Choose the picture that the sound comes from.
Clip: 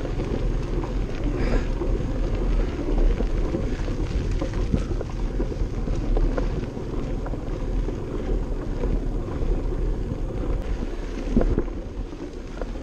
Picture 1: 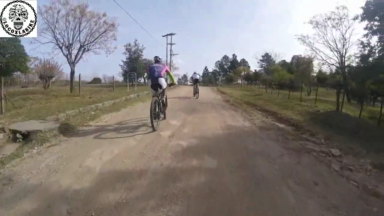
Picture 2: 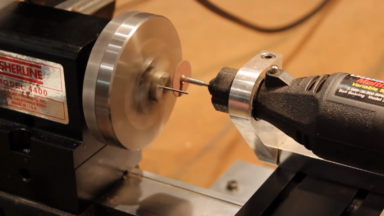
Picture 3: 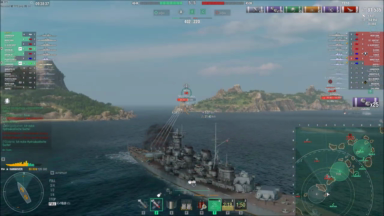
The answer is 1